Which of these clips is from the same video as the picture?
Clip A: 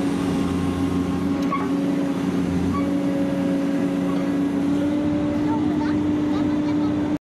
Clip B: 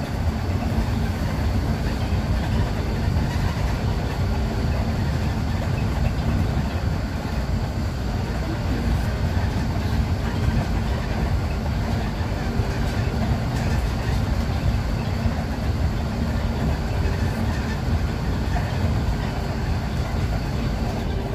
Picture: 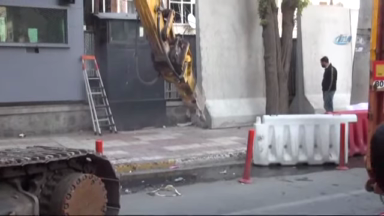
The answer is A